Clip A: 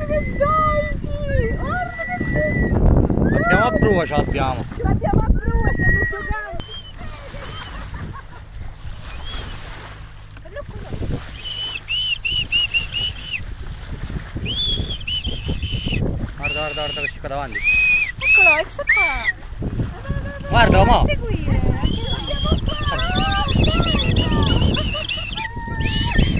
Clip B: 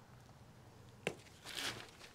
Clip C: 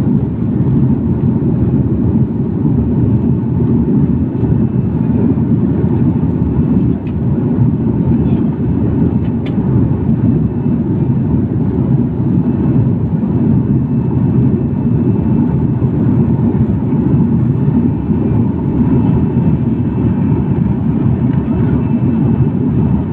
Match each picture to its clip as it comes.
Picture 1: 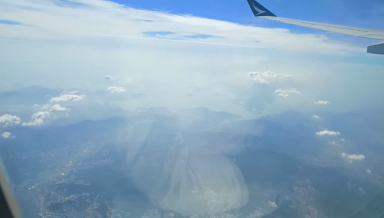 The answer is C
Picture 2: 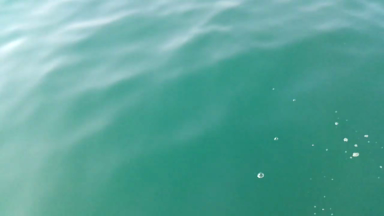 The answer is A